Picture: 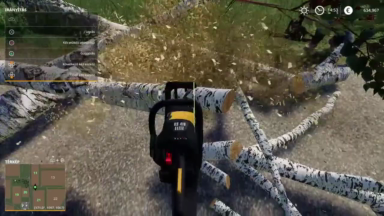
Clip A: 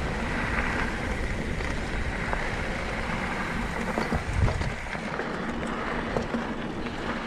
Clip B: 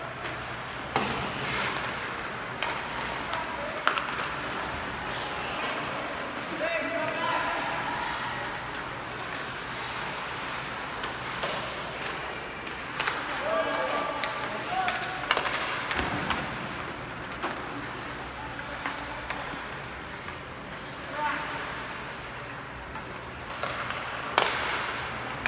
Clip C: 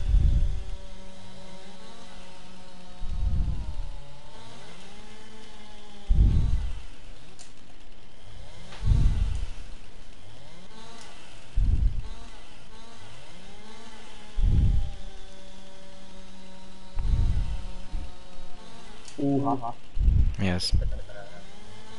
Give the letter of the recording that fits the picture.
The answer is C